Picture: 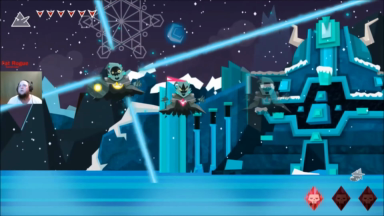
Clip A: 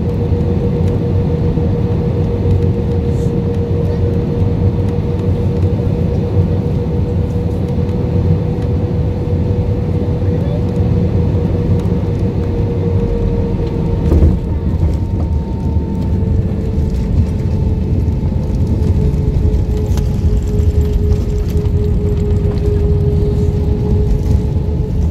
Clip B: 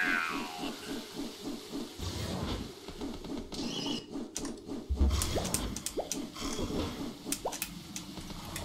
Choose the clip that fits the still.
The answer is B